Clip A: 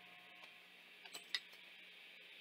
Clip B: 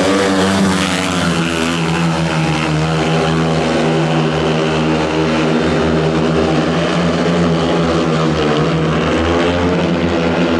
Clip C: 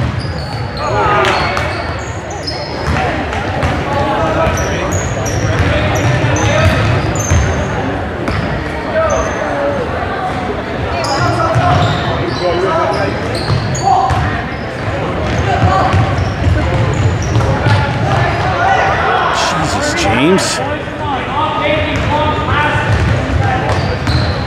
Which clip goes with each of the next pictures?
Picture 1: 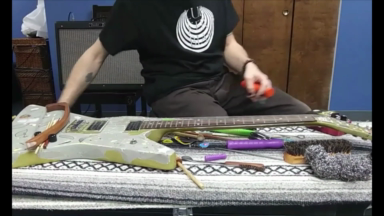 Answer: A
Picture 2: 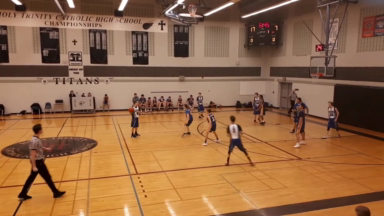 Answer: C